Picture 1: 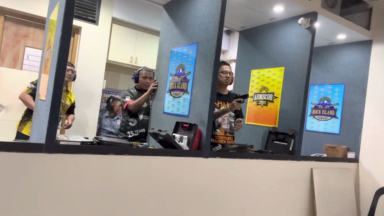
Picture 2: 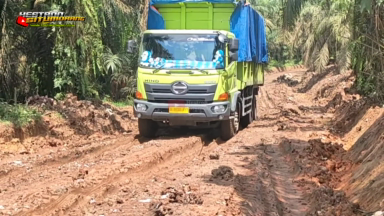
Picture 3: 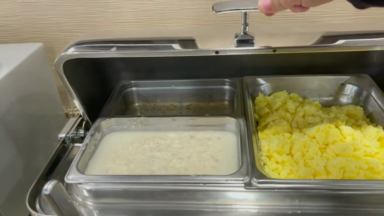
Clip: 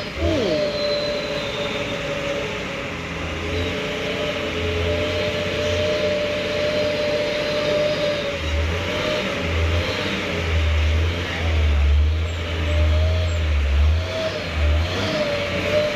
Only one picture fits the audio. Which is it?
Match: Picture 2